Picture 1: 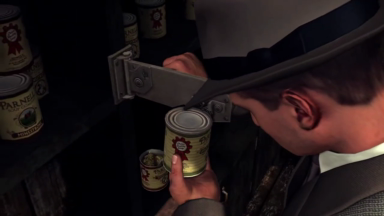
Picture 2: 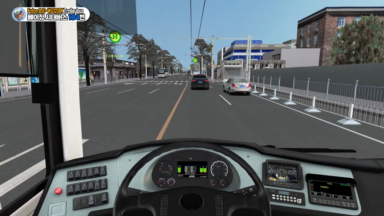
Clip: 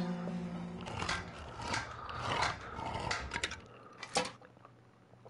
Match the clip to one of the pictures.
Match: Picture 1